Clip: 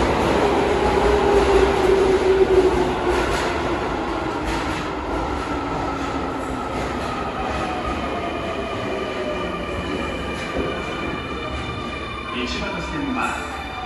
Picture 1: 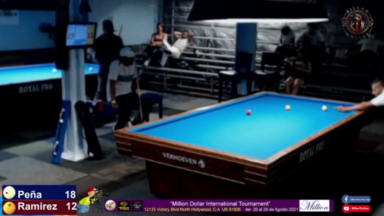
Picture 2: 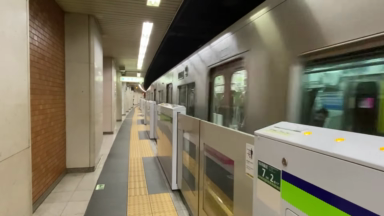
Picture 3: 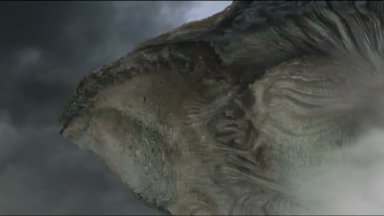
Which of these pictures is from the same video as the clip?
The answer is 2